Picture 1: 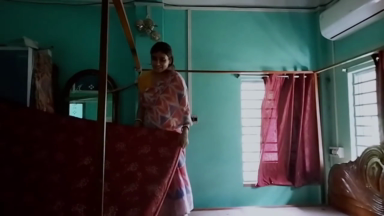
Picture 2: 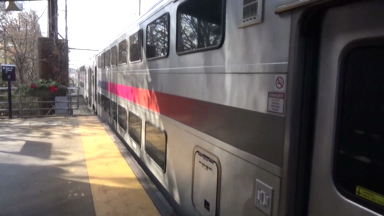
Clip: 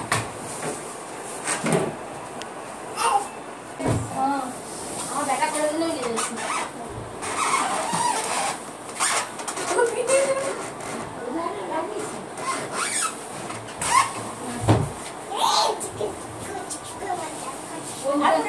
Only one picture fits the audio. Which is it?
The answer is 1